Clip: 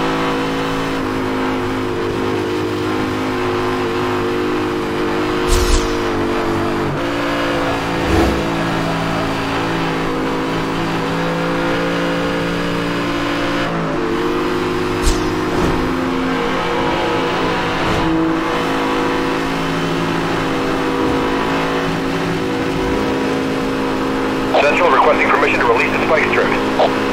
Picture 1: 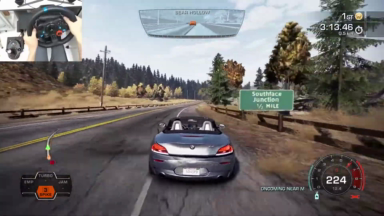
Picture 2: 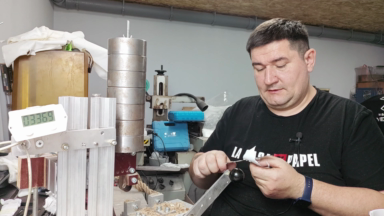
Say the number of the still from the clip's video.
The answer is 1